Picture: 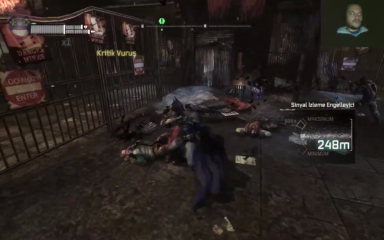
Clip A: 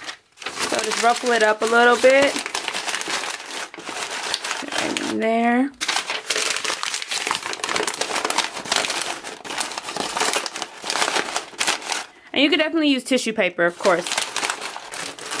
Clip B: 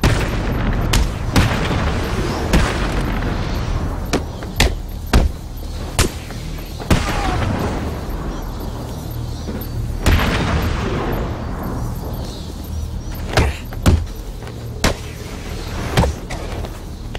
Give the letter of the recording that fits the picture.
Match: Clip B